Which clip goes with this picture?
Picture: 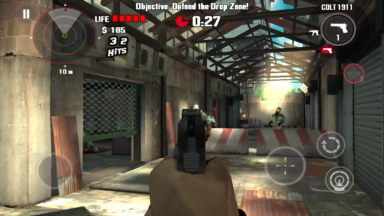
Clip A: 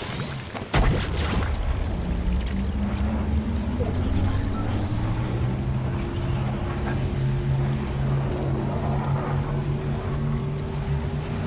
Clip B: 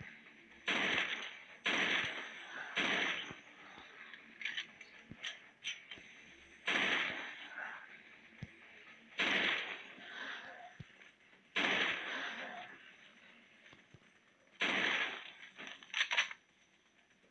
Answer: B